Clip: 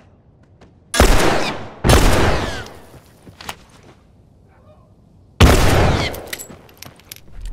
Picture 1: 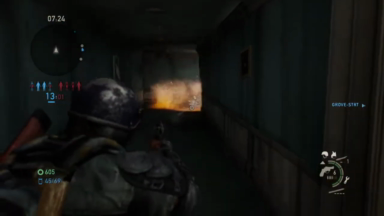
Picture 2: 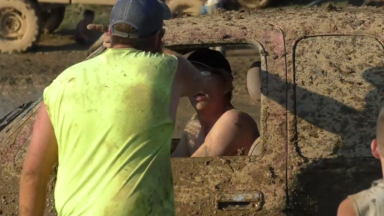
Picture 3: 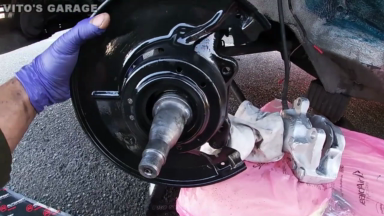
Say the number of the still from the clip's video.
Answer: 1